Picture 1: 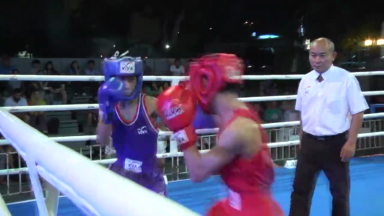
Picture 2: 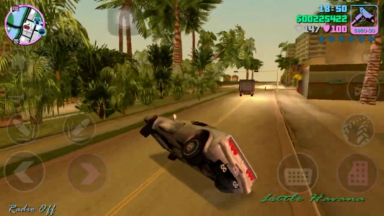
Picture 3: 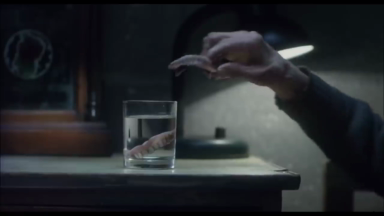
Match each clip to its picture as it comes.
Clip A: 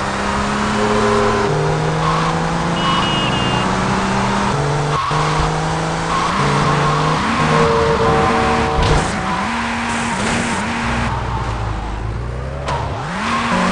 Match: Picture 2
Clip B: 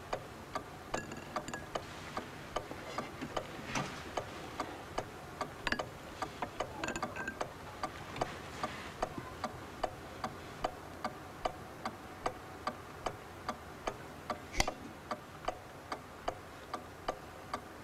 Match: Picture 3